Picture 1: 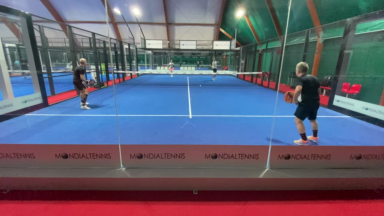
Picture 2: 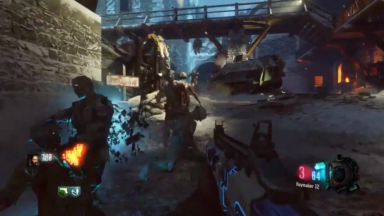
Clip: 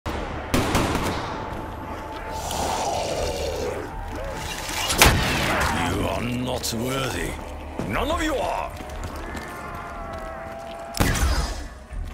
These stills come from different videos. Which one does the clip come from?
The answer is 2